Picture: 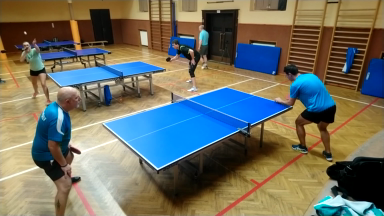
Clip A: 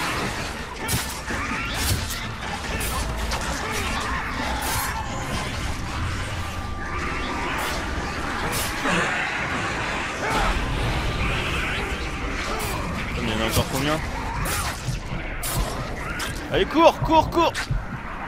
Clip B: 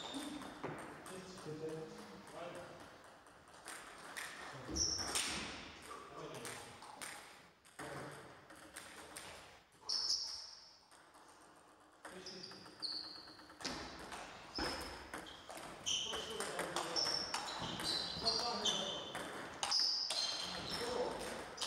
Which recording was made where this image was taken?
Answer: B